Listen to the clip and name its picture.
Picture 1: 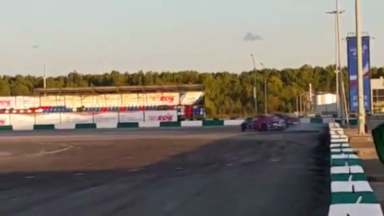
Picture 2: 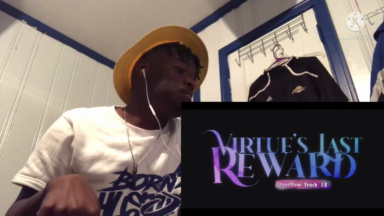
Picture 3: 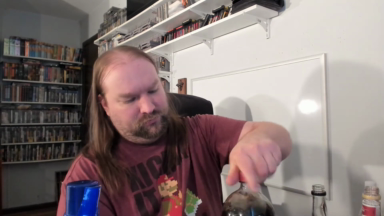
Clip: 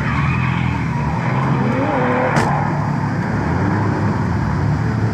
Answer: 1